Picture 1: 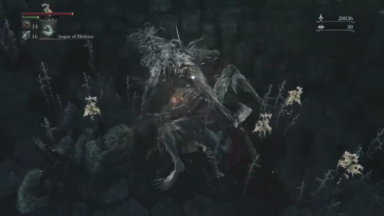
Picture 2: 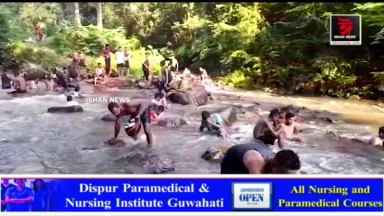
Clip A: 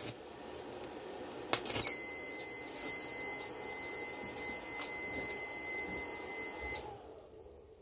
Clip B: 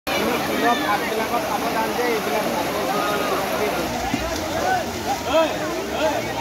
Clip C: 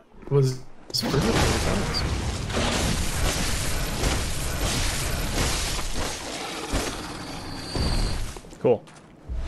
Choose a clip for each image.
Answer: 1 C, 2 B